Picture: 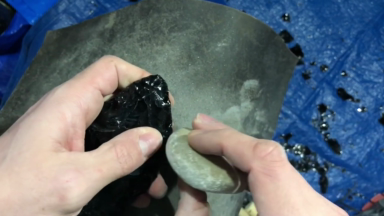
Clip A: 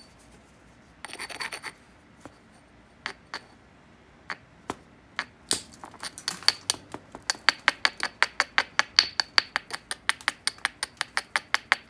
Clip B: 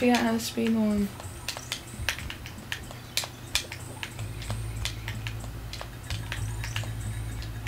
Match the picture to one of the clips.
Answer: A